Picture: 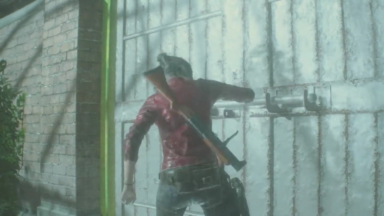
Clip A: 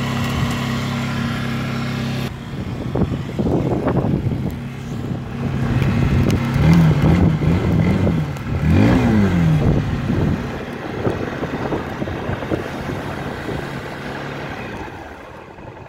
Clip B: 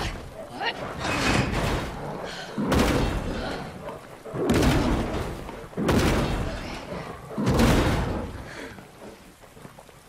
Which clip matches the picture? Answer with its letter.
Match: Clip B